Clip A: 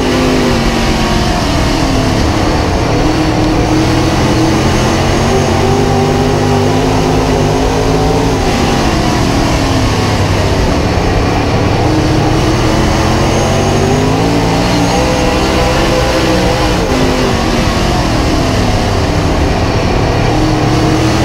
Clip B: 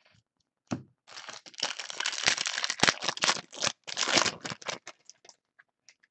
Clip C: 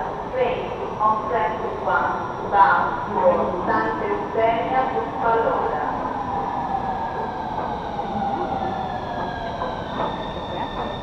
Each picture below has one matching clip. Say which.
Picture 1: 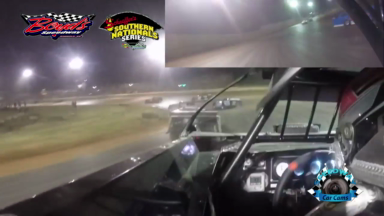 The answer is A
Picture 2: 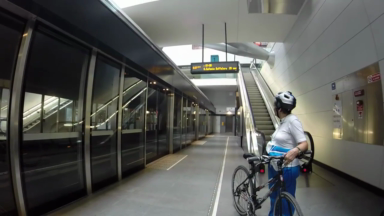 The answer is C